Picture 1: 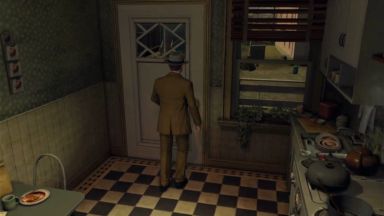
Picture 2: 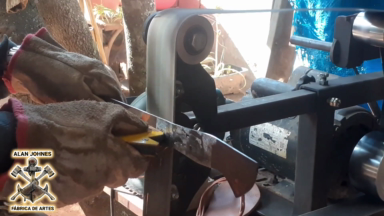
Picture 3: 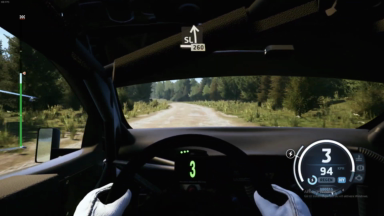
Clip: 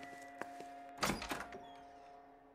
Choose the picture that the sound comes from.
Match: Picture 1